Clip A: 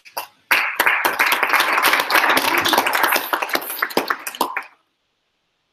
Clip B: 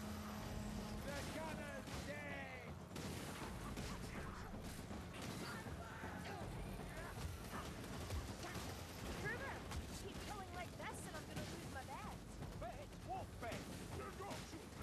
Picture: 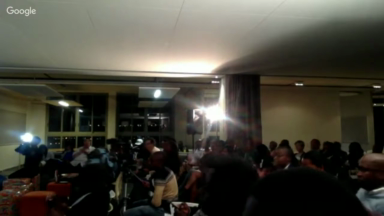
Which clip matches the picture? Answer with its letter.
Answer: A